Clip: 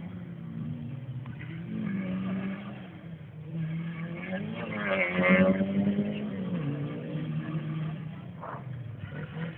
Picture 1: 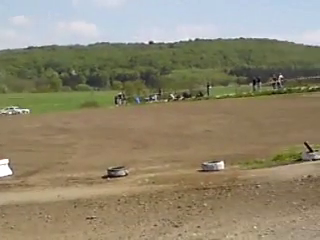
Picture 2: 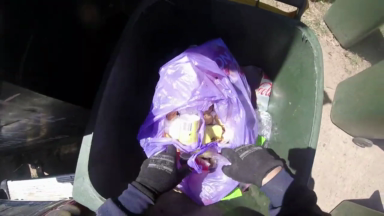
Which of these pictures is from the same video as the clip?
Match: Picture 1